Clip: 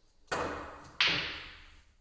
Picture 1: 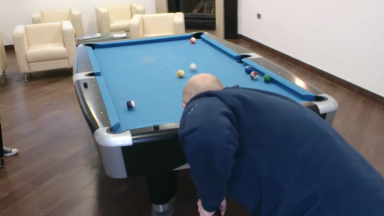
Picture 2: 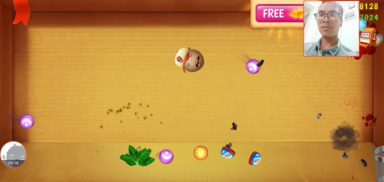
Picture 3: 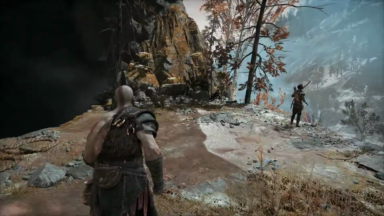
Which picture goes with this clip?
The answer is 1